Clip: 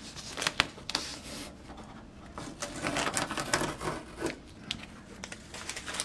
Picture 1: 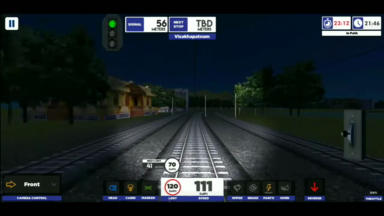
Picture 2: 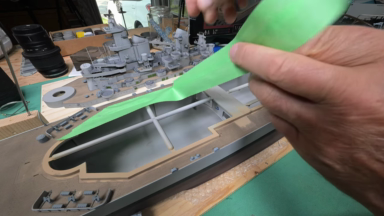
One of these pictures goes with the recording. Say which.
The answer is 2